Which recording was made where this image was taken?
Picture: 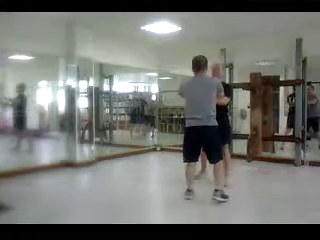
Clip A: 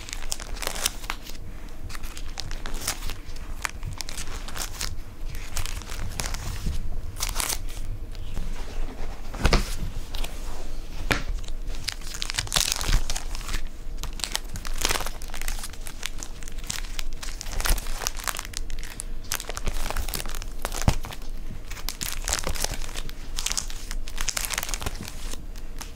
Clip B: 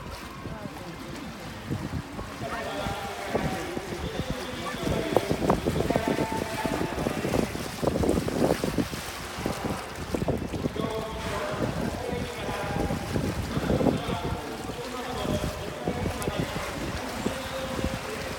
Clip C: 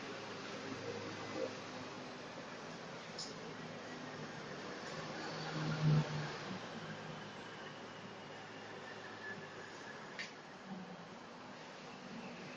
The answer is C